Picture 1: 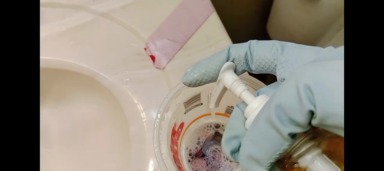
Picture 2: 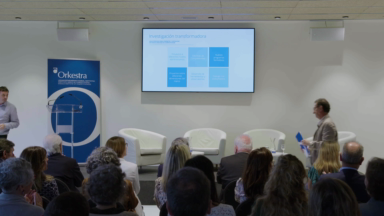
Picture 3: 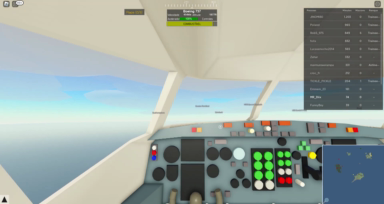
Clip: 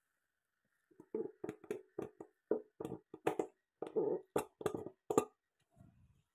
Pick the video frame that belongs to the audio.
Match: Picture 1